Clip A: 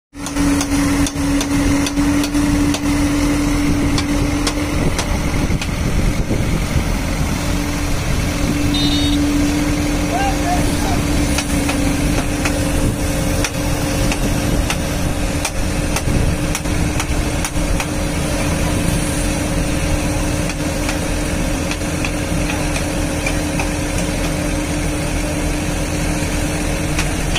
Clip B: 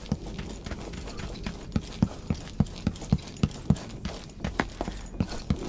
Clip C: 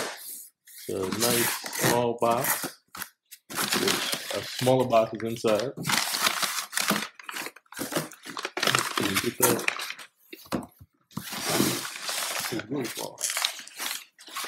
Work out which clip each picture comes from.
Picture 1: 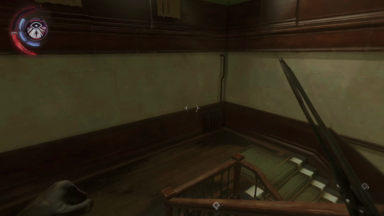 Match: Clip B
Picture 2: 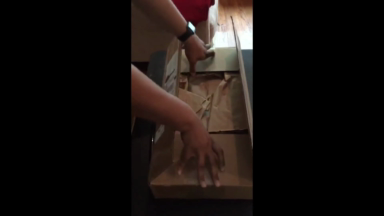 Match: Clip C